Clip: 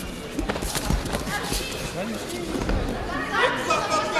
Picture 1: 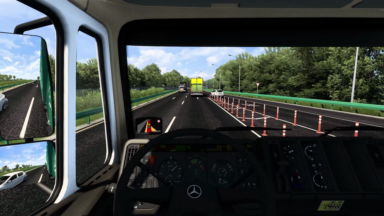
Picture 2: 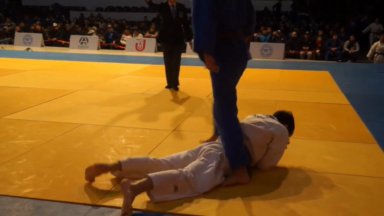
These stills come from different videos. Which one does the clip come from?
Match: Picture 2